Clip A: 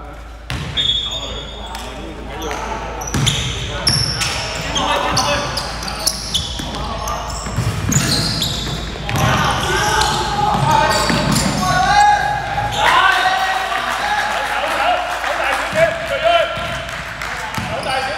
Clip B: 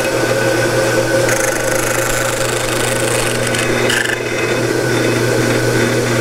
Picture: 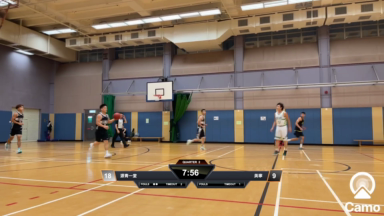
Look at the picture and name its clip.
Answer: A